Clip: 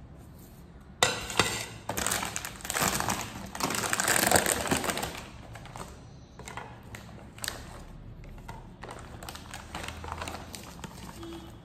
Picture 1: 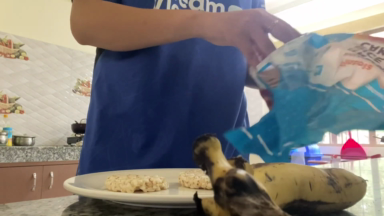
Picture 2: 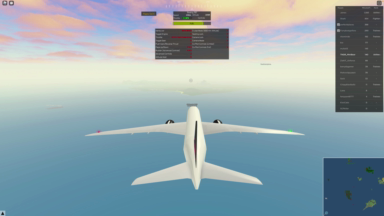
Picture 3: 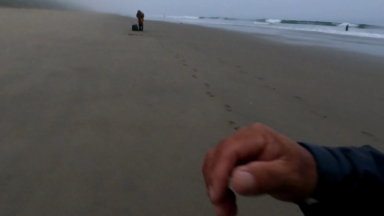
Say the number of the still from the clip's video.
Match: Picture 1